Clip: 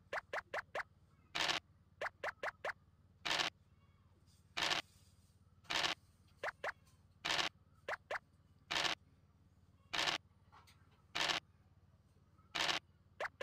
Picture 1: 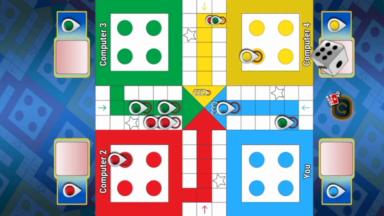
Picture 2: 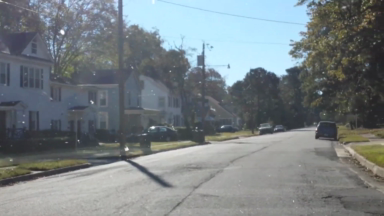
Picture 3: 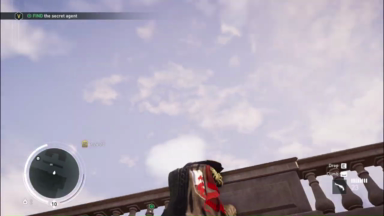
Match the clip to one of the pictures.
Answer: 1